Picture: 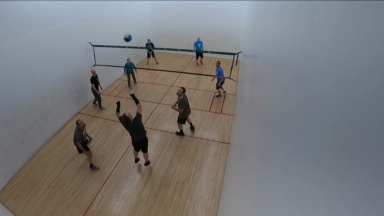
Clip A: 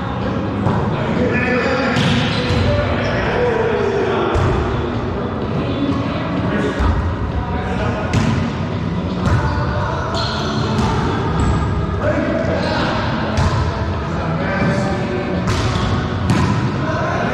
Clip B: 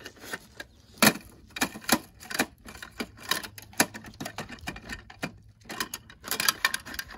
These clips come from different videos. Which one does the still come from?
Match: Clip A